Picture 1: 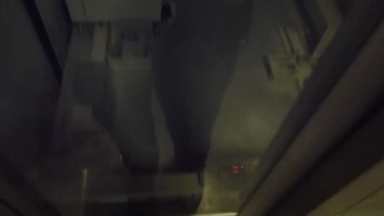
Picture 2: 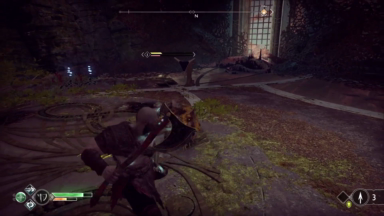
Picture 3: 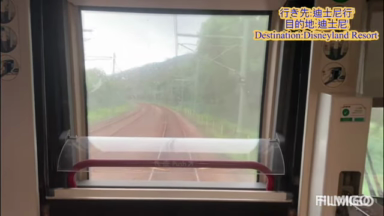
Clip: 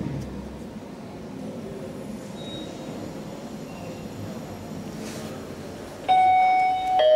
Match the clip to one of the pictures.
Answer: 1